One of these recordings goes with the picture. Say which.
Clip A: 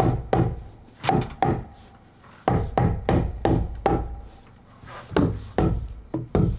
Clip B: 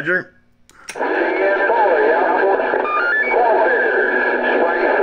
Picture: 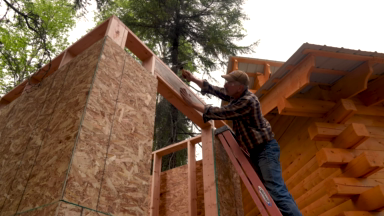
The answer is A